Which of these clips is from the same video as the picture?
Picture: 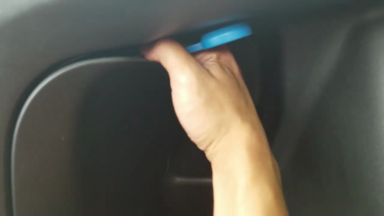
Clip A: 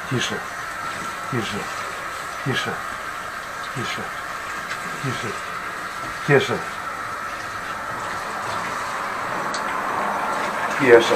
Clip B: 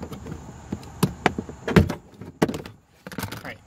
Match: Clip B